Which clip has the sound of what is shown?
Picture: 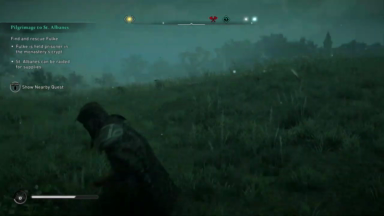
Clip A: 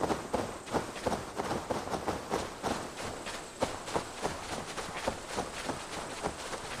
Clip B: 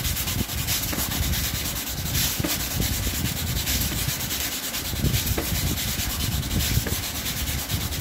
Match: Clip A